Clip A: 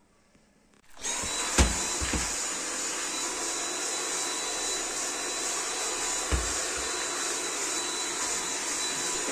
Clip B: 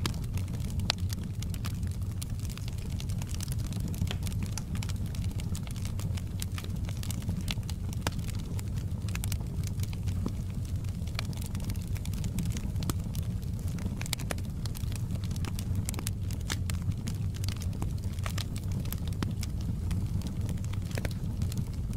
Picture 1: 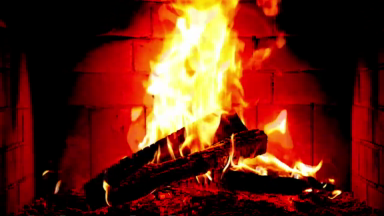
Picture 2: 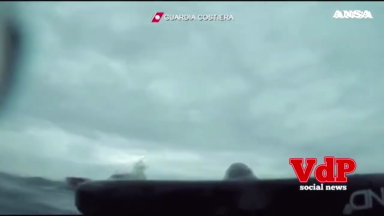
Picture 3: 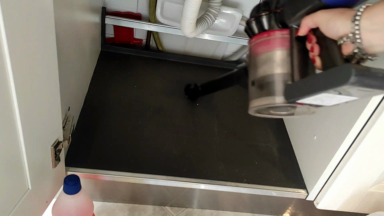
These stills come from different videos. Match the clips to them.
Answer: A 3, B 1